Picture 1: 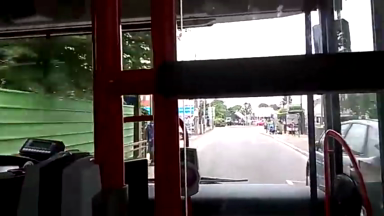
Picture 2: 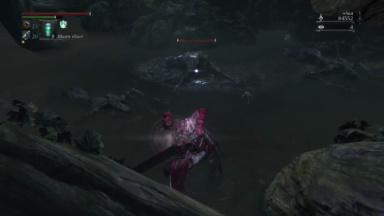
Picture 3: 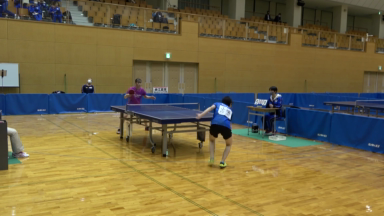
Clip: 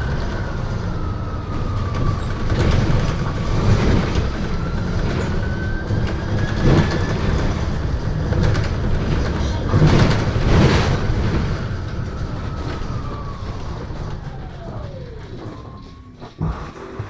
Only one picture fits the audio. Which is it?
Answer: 1